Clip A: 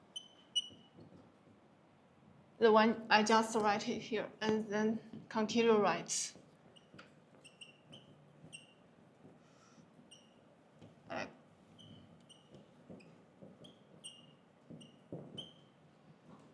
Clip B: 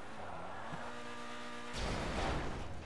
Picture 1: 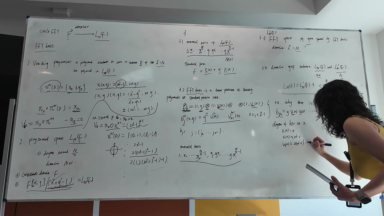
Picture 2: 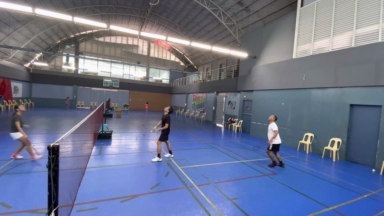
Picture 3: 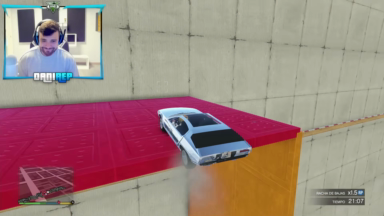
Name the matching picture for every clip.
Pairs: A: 1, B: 3